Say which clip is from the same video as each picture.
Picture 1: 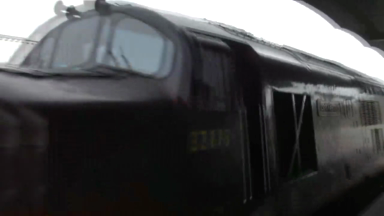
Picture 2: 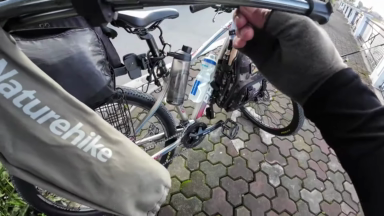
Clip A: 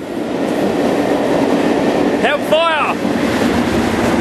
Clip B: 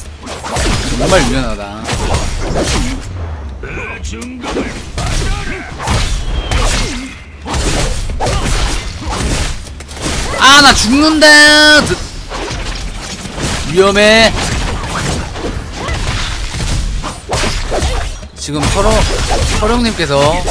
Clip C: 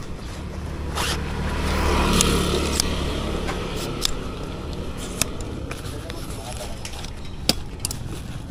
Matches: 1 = A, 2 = C